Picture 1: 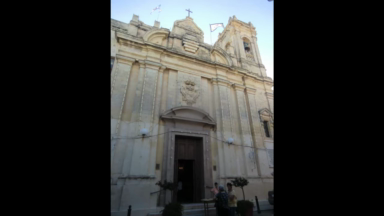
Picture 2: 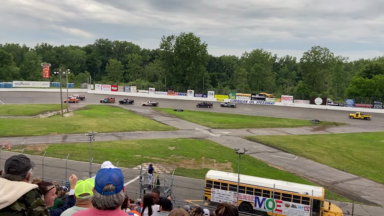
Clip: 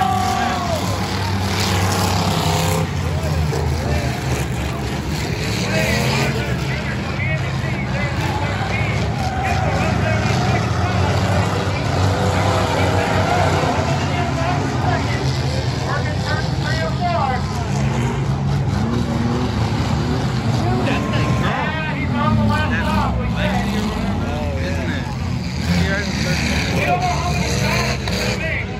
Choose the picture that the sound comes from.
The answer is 2